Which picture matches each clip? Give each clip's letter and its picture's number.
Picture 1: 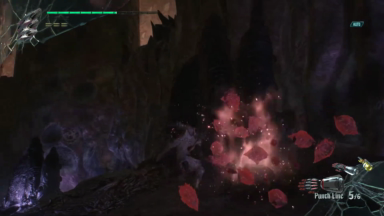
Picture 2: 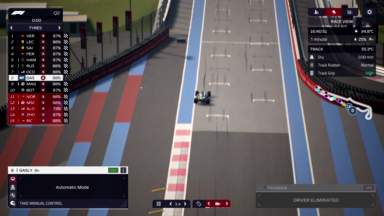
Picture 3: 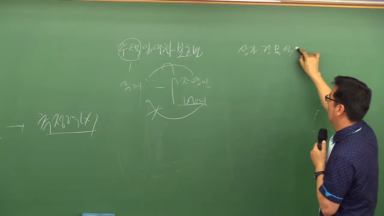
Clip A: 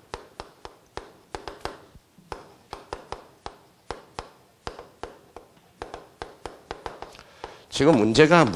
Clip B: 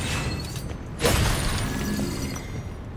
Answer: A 3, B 1